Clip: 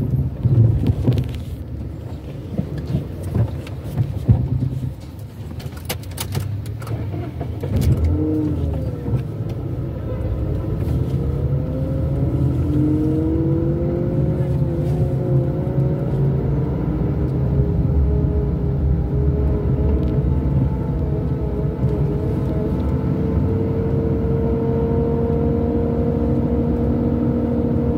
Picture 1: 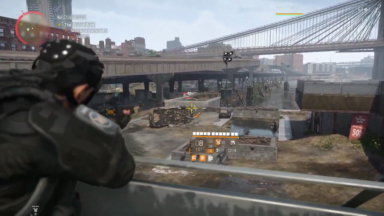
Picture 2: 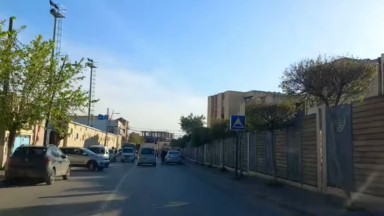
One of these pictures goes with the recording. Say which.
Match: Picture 2